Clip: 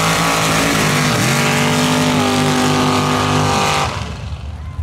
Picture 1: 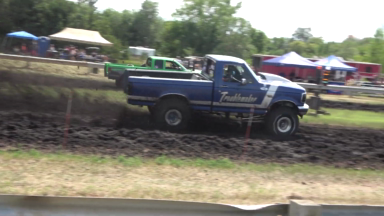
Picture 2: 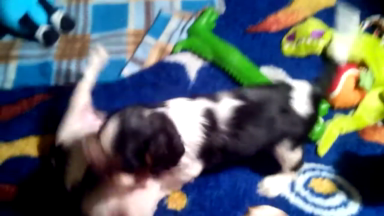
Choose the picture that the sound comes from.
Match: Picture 1